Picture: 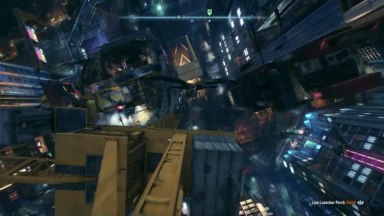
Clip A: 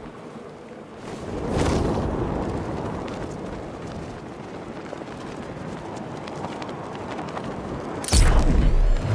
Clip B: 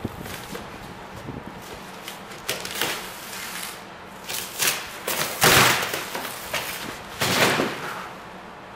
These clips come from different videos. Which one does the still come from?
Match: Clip A